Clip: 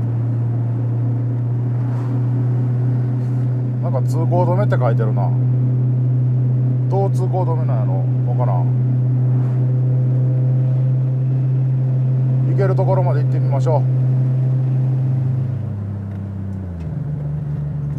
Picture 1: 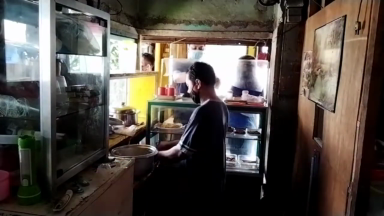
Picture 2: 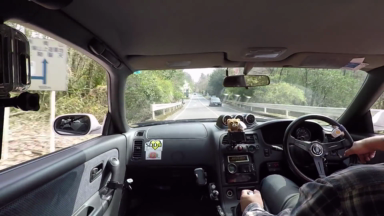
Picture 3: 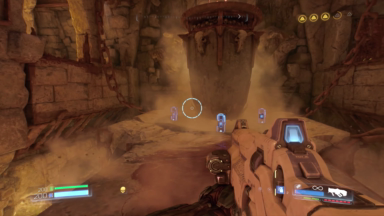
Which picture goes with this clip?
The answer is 2